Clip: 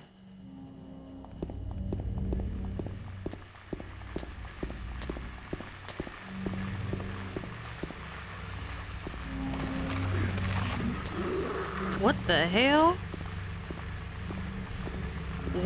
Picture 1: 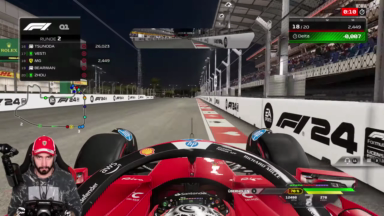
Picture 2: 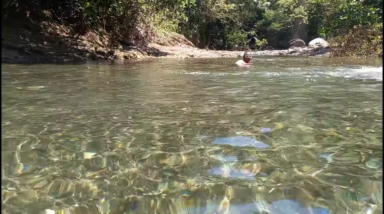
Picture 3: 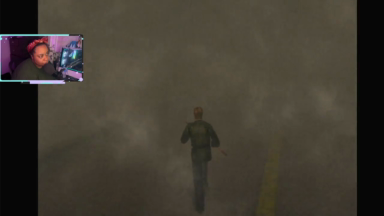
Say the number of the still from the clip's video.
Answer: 3